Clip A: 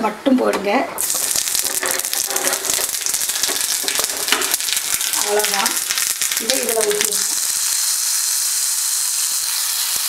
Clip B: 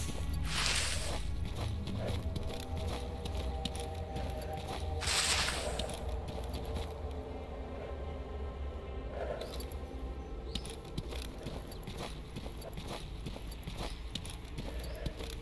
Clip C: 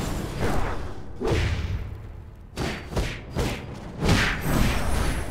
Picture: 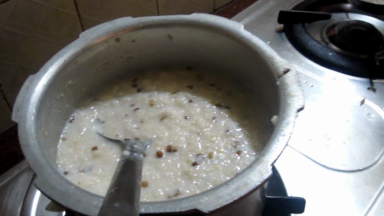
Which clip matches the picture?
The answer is A